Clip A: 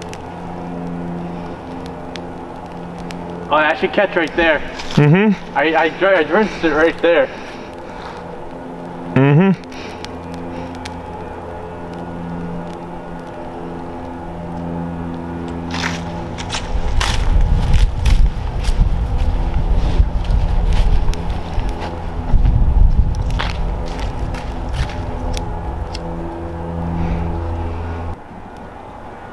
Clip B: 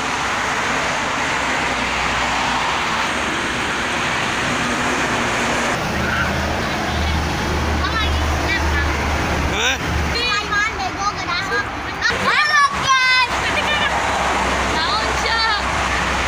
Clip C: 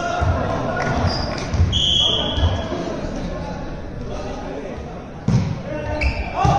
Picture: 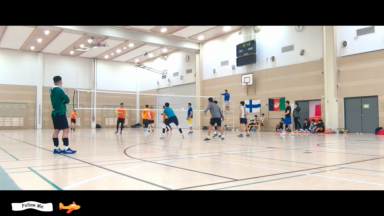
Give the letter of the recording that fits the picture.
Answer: C